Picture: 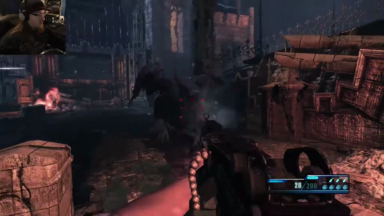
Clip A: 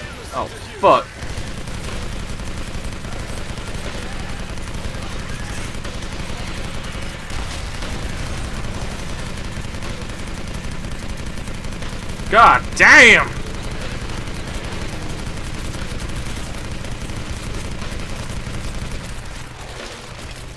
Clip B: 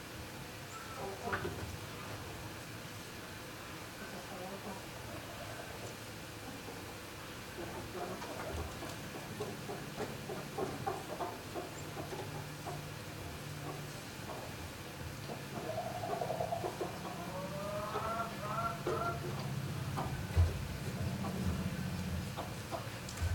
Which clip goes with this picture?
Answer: A